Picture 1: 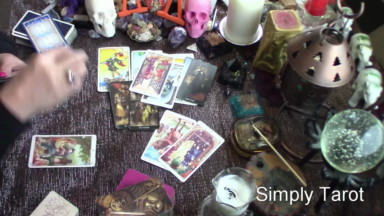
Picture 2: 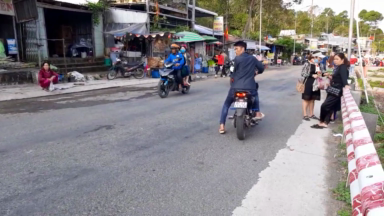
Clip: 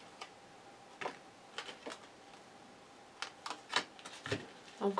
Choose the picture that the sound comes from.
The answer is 1